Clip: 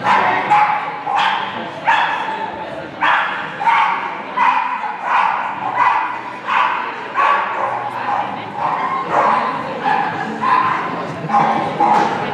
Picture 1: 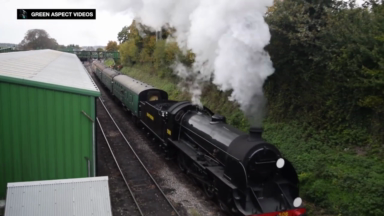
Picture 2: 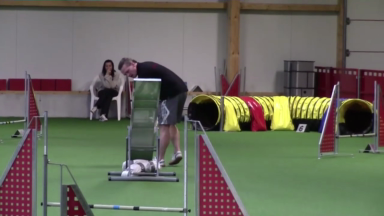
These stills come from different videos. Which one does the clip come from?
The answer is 2